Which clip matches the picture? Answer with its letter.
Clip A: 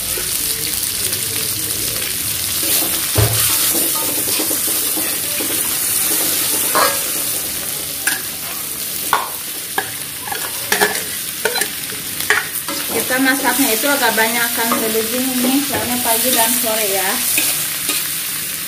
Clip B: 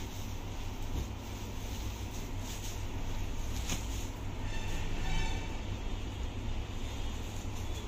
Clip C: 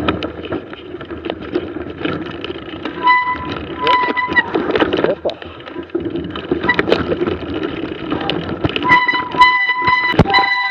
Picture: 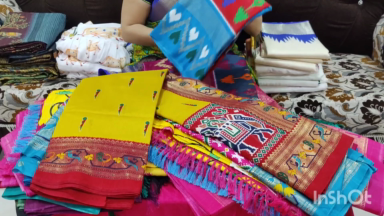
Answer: B